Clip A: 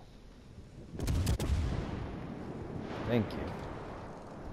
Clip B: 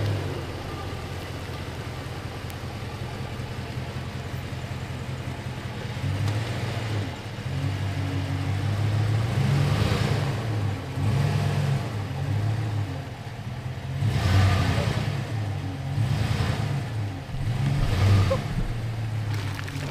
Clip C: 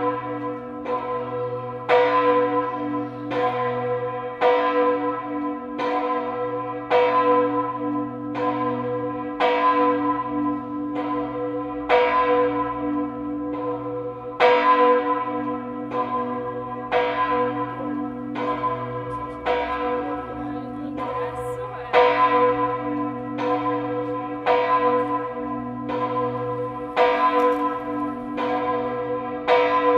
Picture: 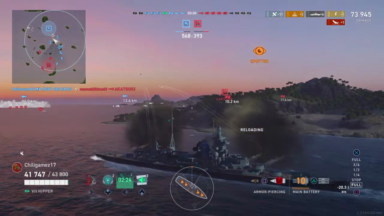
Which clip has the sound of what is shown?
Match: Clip A